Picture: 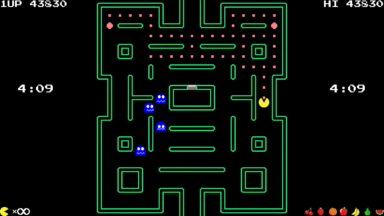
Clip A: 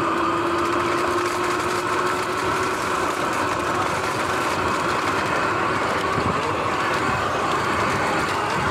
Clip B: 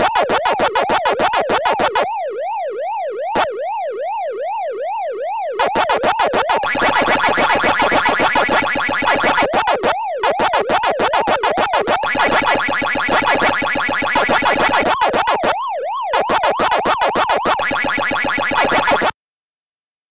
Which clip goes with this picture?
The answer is B